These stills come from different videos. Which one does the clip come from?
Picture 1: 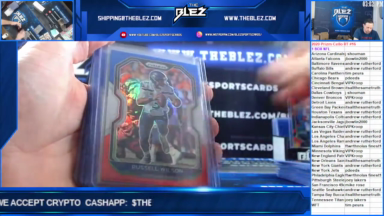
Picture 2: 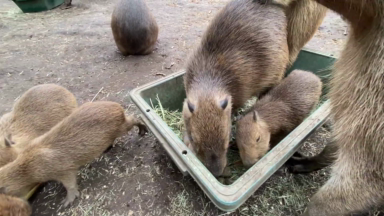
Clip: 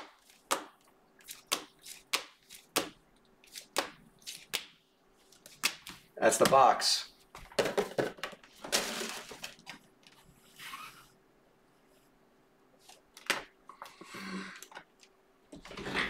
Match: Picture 1